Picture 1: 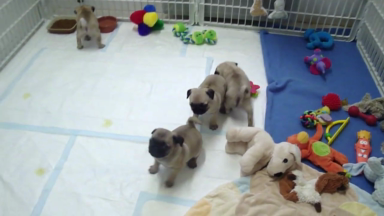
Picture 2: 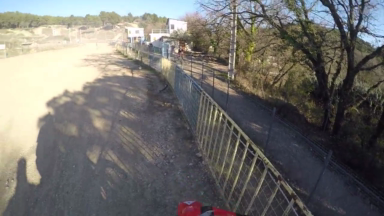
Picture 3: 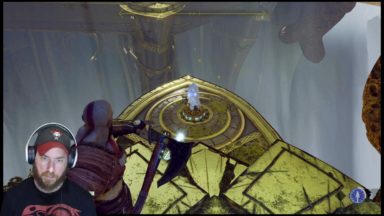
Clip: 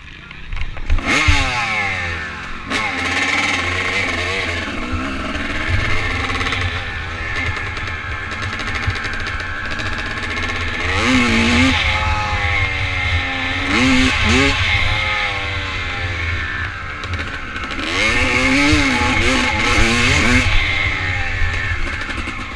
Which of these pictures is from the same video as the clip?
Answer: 2